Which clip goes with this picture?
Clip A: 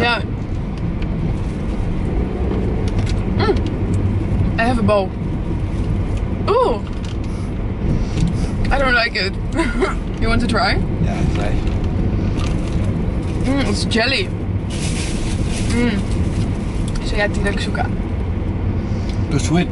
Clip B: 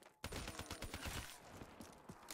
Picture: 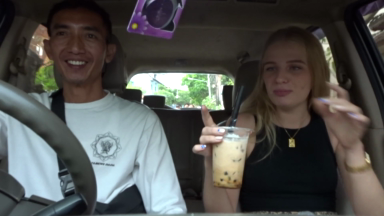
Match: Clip A